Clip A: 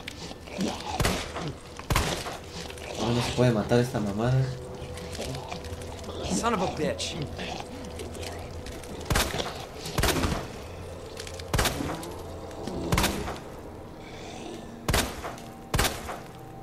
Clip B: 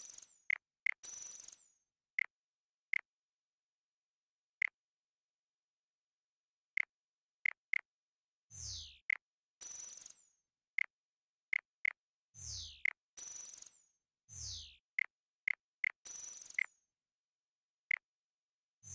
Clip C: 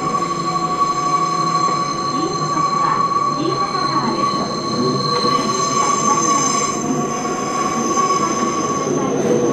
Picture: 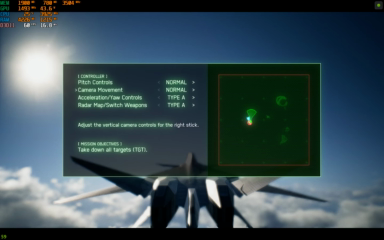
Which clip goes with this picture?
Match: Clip B